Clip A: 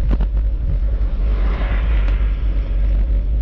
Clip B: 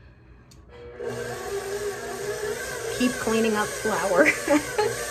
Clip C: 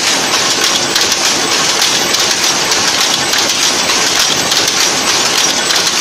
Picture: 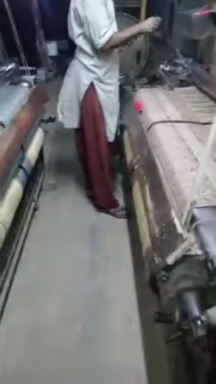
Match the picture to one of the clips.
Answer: C